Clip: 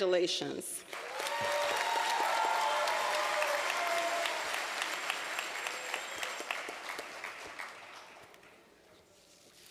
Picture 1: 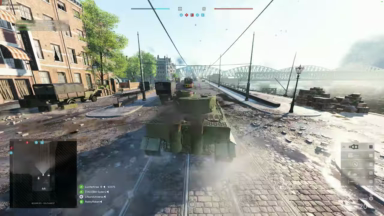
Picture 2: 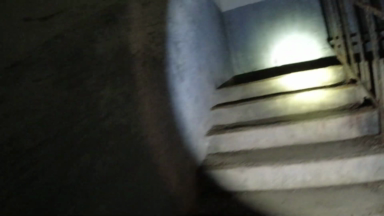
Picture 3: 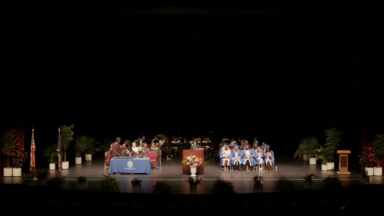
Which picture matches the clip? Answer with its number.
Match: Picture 3